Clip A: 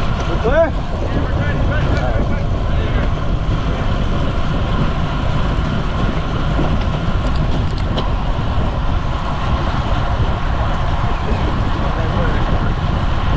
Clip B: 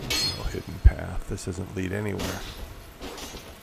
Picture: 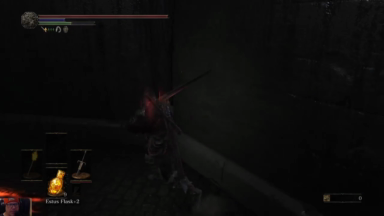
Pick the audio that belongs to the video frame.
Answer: B